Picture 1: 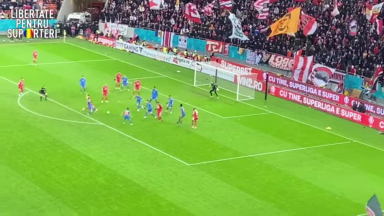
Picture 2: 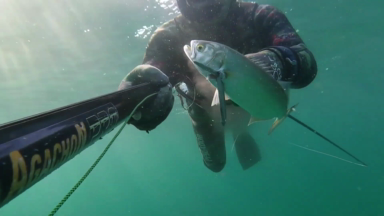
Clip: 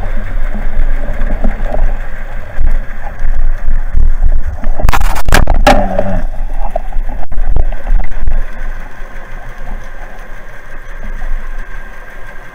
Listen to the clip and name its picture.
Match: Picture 2